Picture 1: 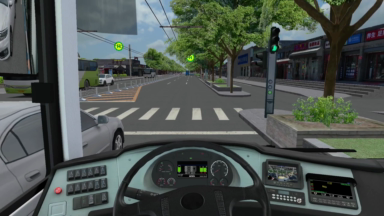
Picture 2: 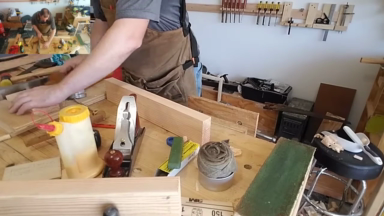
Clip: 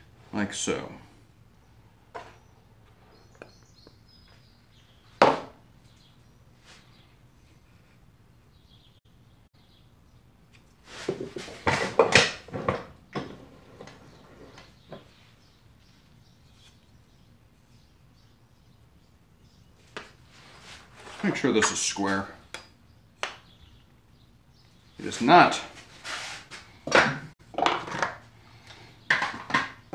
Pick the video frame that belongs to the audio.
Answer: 2